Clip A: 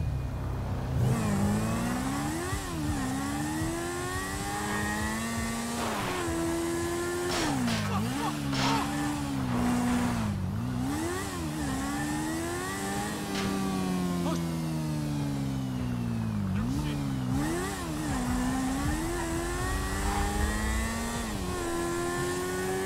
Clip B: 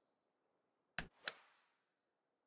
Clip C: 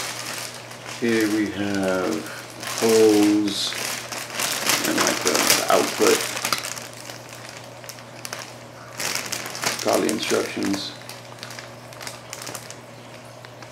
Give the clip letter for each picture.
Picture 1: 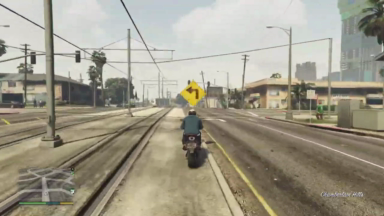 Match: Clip A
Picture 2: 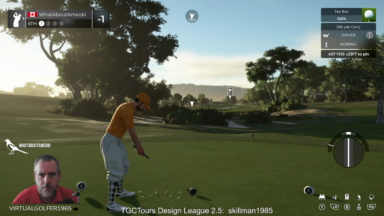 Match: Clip B